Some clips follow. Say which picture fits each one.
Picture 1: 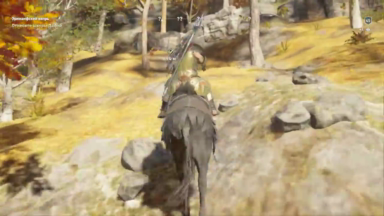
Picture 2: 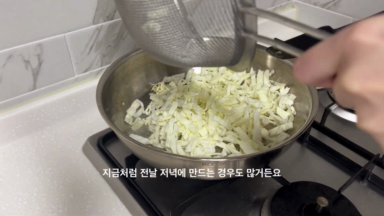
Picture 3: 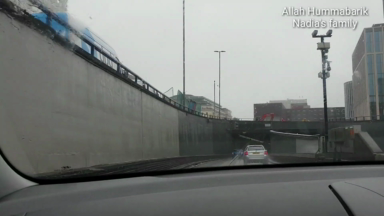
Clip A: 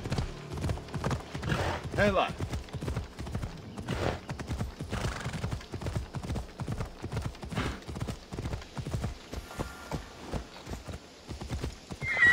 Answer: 1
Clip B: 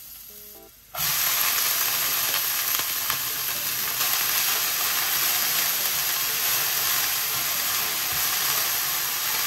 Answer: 2